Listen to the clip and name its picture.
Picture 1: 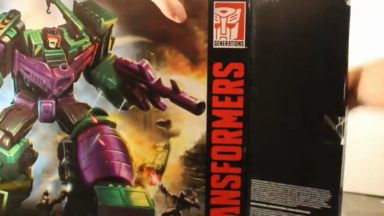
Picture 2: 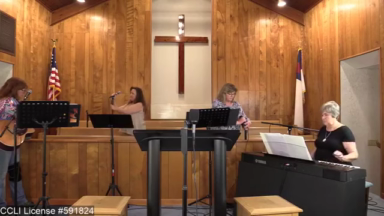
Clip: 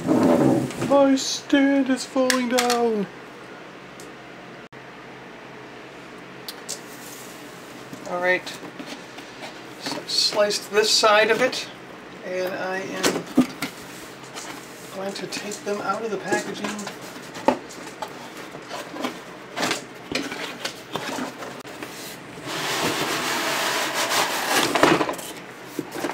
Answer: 1